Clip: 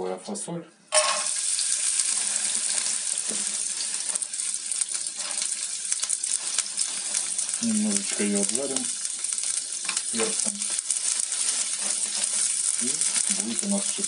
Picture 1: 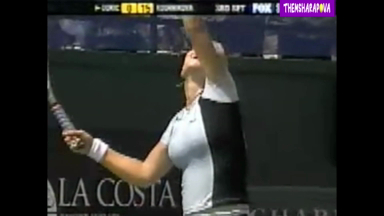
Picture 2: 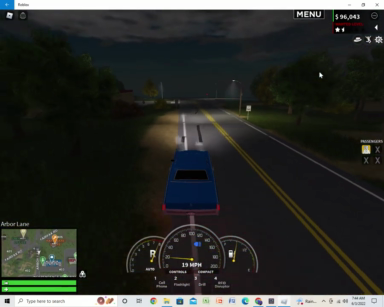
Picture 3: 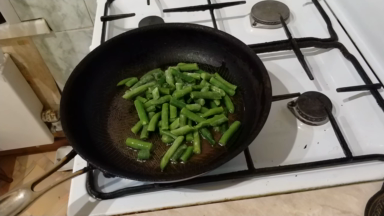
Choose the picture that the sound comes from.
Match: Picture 3